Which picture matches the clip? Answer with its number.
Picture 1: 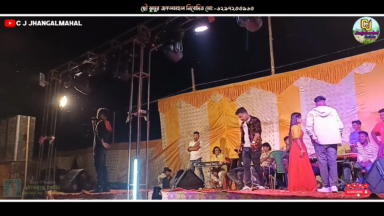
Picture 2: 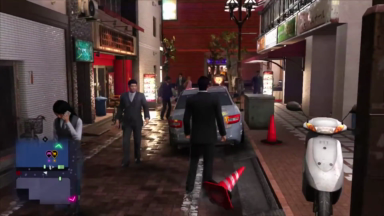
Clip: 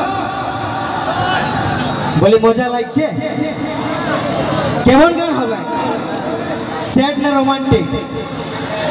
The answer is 1